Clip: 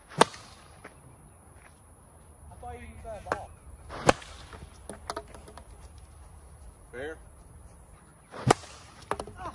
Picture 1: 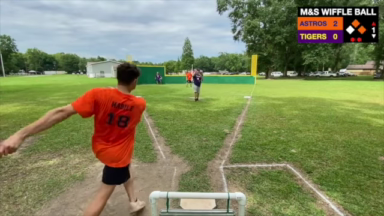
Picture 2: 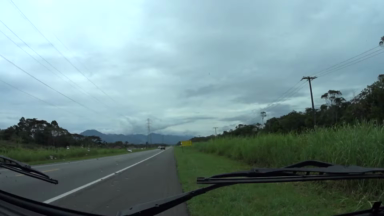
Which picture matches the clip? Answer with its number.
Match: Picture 1